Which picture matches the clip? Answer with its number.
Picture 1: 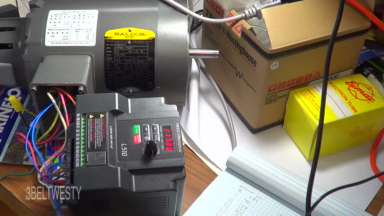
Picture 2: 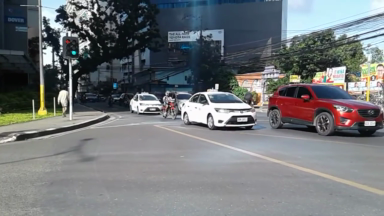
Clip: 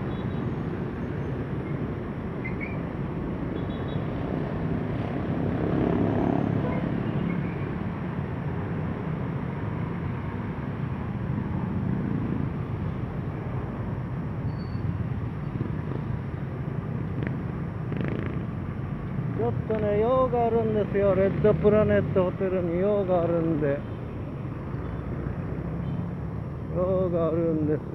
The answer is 2